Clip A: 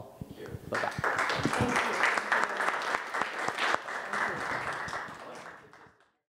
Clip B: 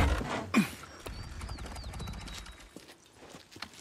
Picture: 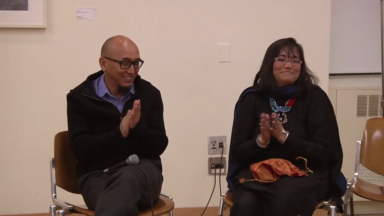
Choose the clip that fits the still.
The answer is A